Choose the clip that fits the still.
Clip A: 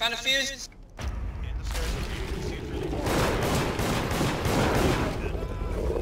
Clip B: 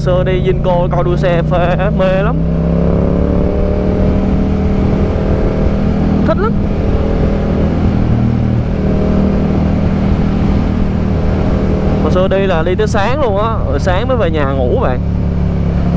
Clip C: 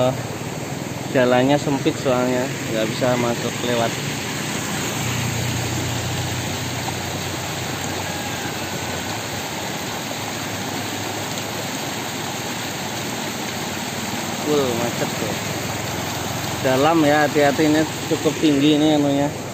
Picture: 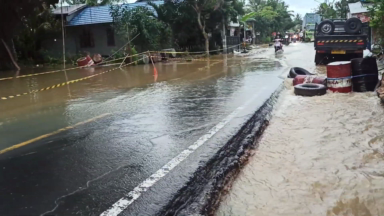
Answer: C